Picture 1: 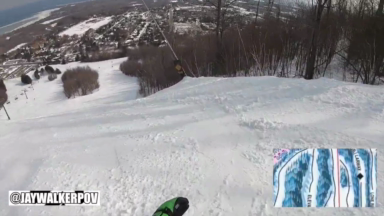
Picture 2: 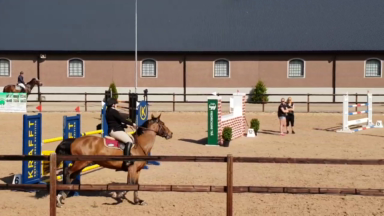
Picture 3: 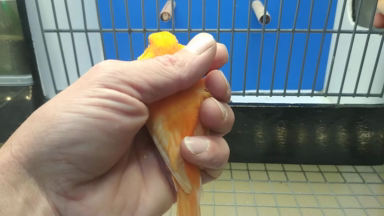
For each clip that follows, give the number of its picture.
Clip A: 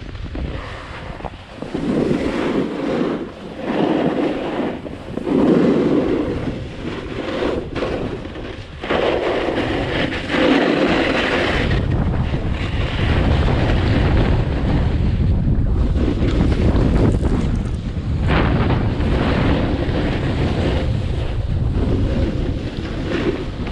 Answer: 1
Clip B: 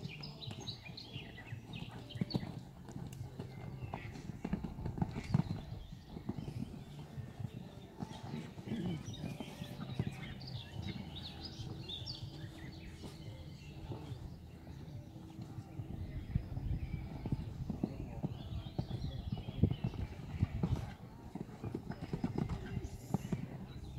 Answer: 2